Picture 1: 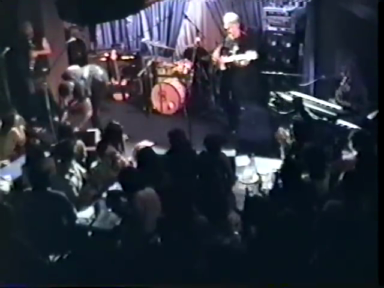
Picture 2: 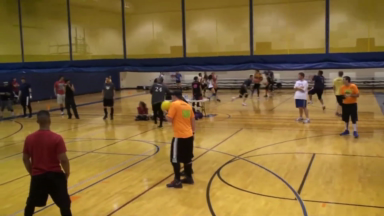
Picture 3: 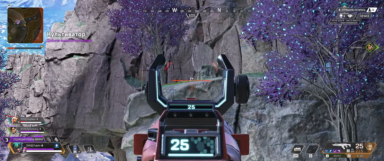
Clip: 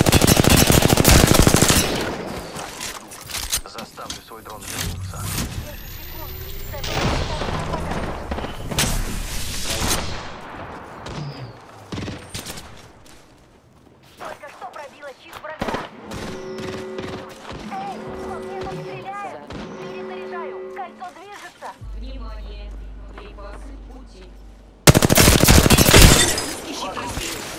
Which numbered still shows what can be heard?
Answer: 3